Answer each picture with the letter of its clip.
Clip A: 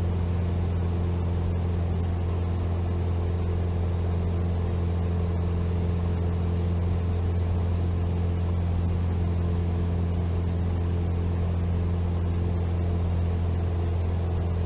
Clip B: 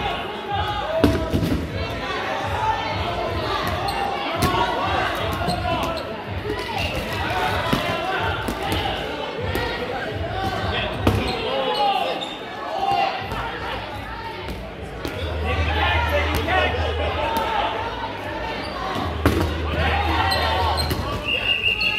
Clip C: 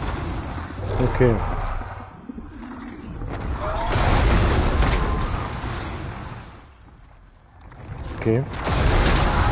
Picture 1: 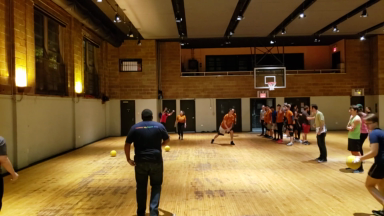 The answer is B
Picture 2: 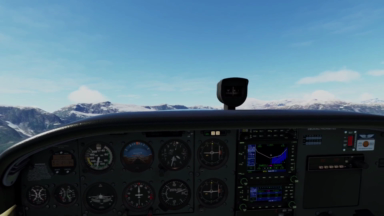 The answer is A